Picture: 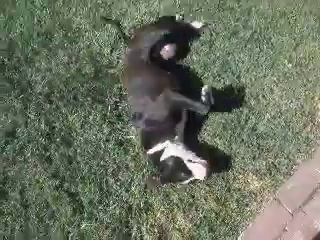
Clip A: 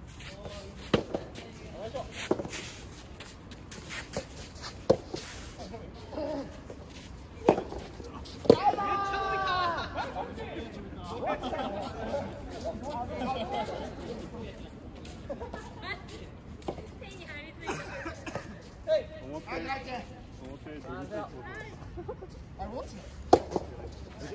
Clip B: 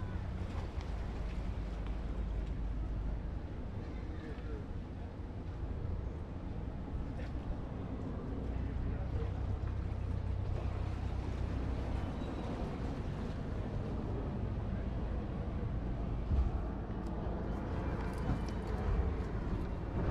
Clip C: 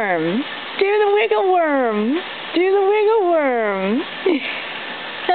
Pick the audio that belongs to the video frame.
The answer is C